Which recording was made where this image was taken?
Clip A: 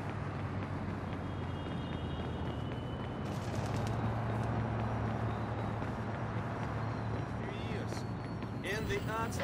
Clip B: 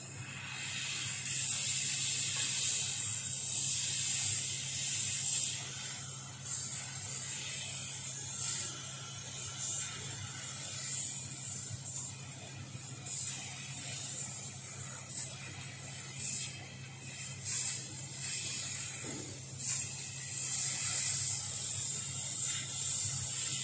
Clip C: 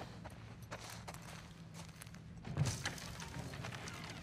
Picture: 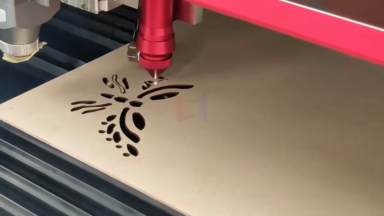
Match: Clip B